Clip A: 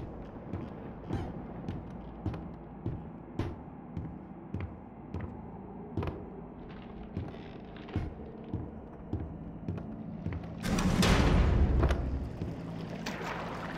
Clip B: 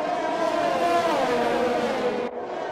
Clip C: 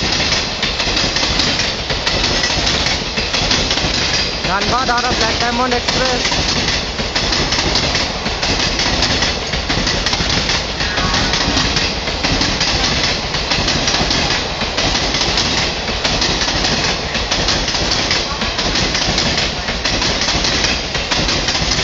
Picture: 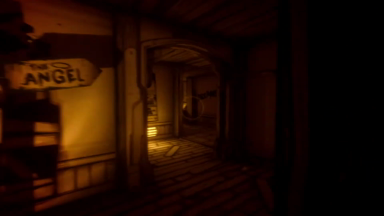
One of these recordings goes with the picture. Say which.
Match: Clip A